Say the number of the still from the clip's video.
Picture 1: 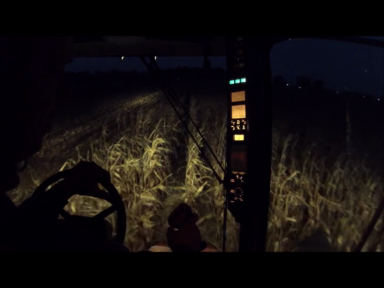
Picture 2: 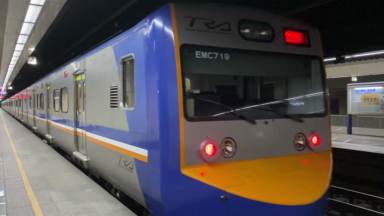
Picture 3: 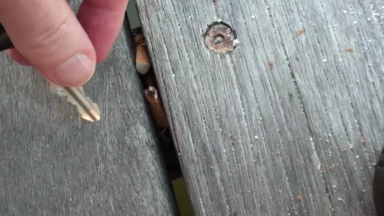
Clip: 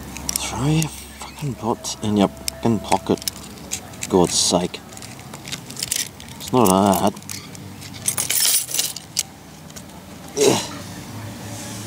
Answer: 3